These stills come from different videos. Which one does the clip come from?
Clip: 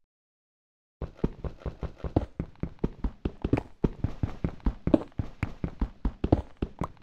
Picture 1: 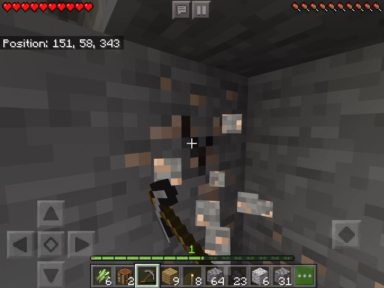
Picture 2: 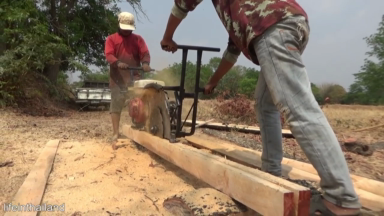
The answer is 1